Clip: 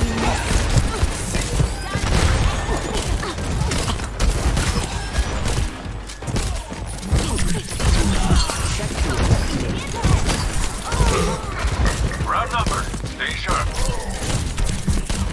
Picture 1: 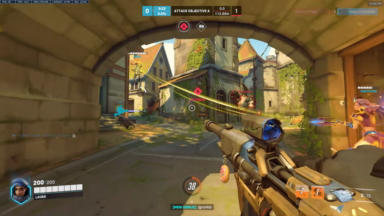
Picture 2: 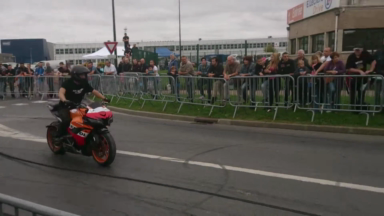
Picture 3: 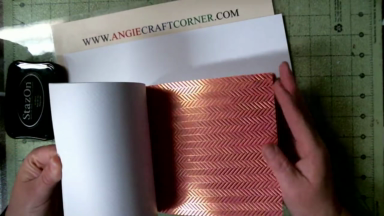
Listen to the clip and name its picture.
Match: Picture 1